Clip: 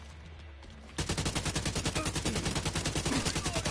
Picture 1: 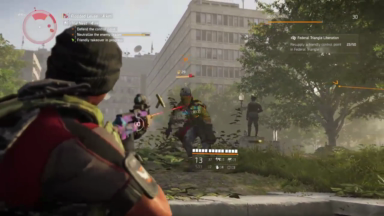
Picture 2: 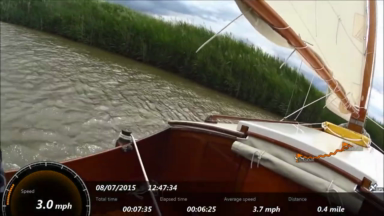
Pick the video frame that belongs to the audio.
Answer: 1